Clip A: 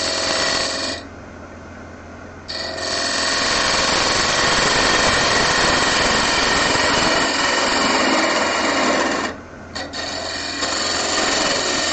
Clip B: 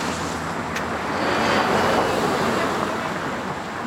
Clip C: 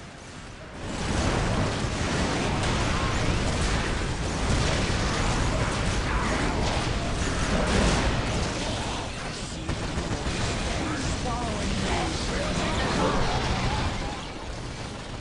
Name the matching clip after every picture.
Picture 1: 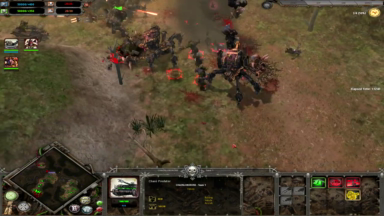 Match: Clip C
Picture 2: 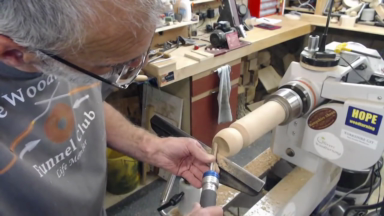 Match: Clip A